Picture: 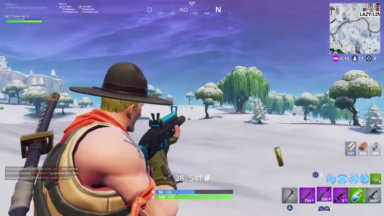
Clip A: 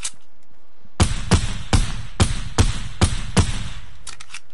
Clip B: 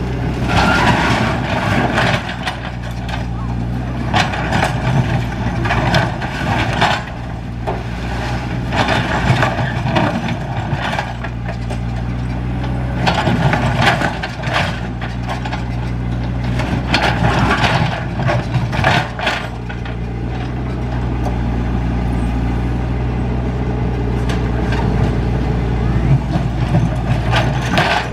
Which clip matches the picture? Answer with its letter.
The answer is A